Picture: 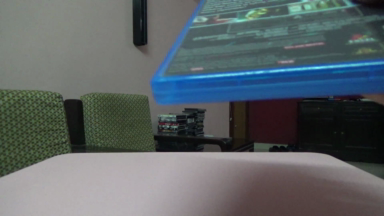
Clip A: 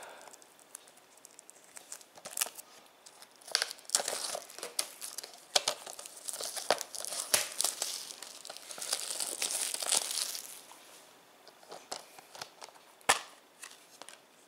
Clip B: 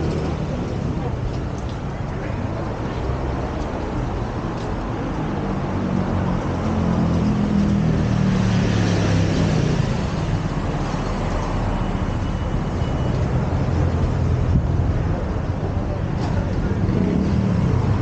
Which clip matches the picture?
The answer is A